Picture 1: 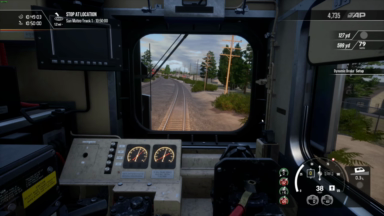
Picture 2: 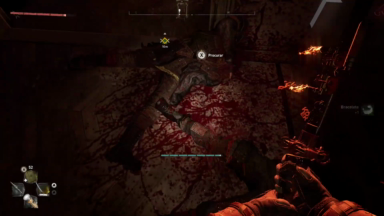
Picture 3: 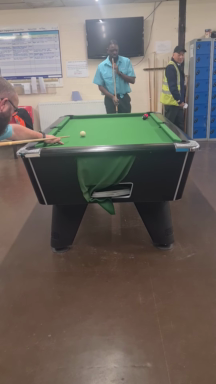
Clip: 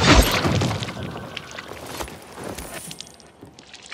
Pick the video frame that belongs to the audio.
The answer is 2